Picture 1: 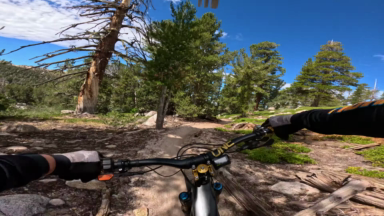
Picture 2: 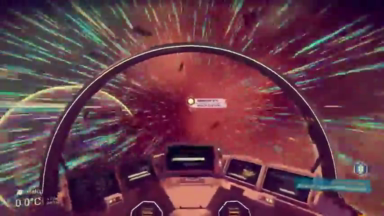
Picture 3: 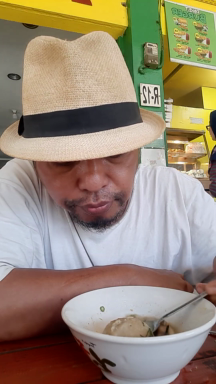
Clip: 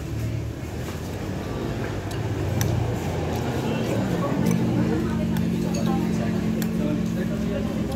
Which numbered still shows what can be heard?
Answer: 3